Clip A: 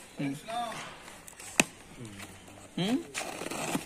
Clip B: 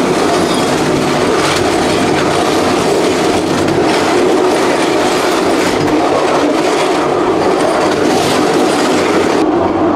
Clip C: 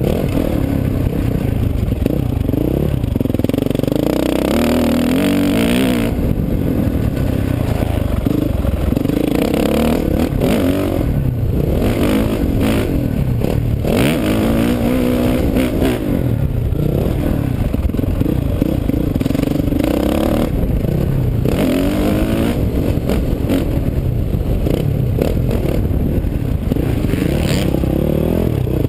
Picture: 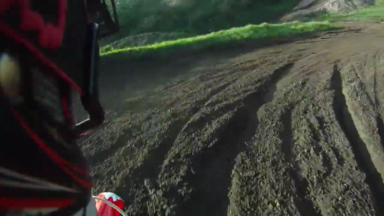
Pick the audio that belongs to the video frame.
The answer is C